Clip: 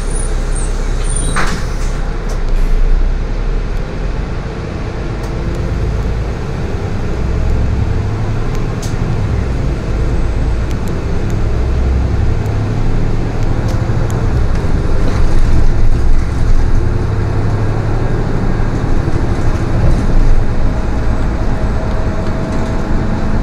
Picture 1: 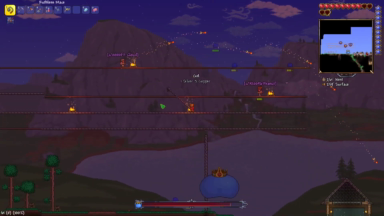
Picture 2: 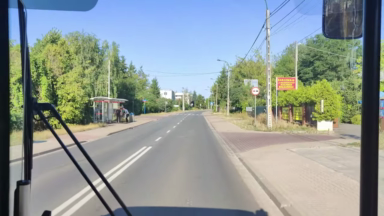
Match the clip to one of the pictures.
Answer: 2